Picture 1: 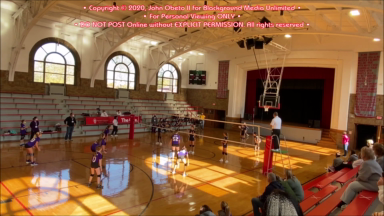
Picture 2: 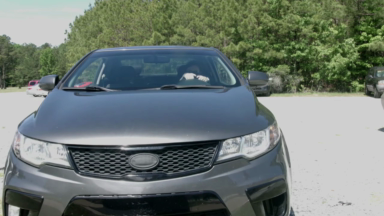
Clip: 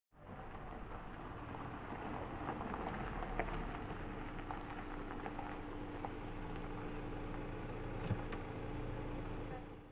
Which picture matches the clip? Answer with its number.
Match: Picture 2